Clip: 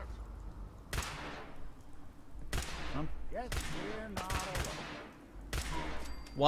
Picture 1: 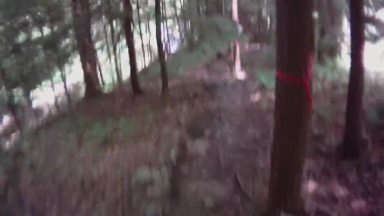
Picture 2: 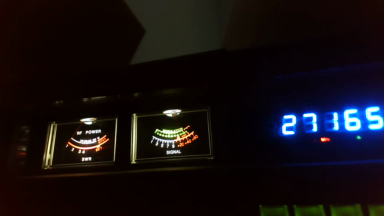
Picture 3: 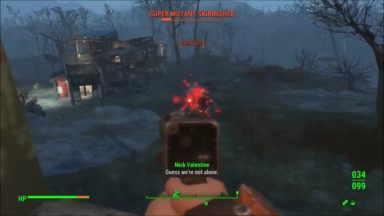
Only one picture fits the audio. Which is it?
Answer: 3